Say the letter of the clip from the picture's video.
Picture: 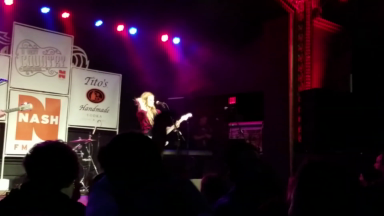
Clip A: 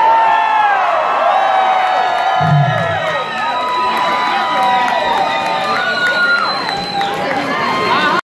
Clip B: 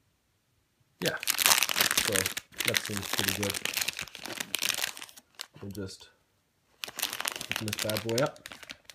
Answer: A